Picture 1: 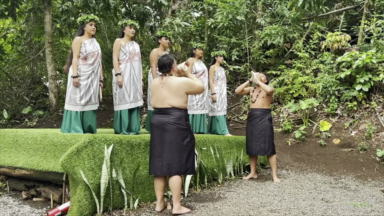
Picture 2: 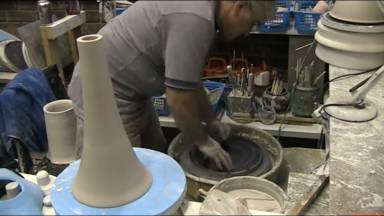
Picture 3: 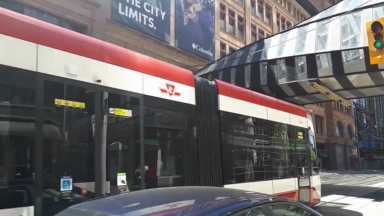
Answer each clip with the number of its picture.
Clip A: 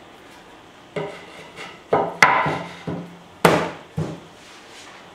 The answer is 2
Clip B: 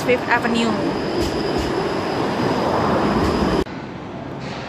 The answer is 3